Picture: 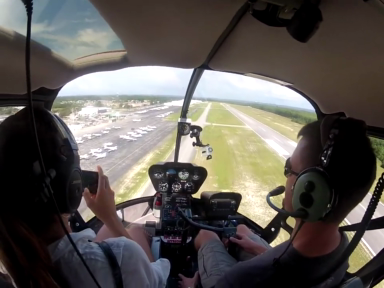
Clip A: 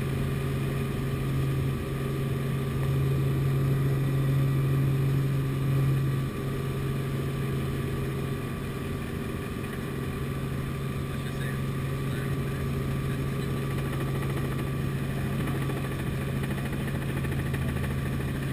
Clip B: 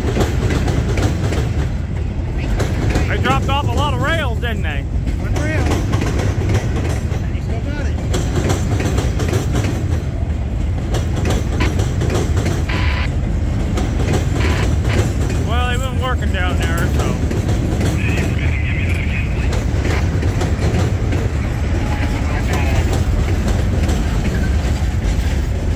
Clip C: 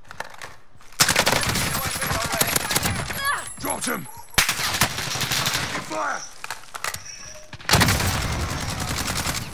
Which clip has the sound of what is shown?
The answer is A